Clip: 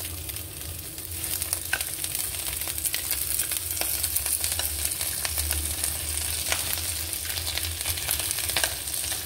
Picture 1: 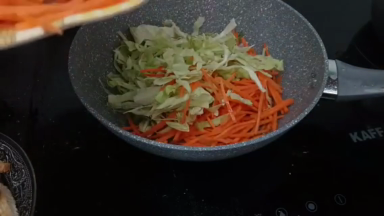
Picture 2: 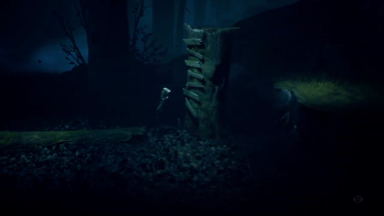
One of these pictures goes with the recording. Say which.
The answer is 1